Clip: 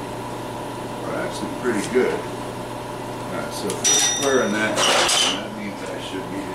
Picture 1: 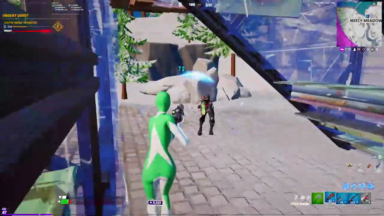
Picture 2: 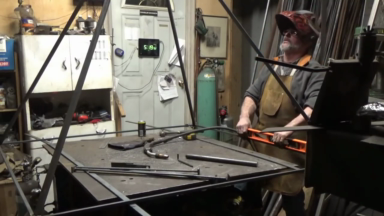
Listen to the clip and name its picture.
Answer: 2